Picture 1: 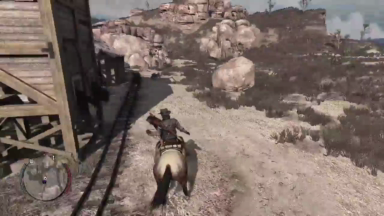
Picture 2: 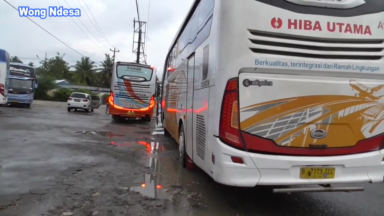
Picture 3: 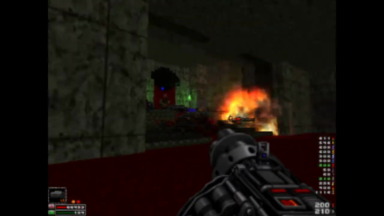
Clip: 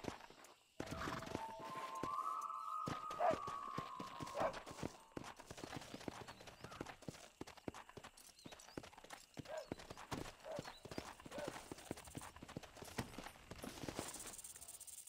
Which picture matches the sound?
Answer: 1